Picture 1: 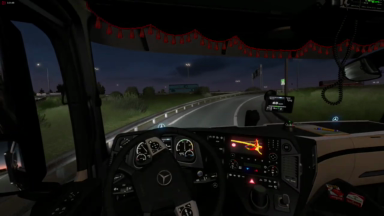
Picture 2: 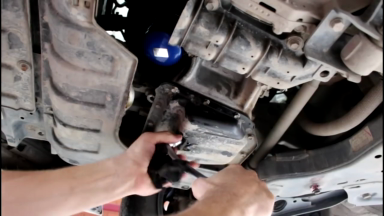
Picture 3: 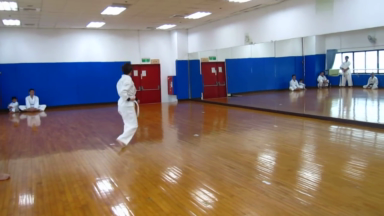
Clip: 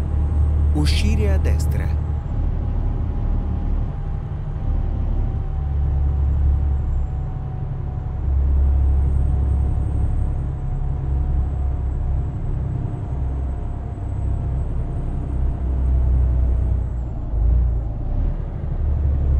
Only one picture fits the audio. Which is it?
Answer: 1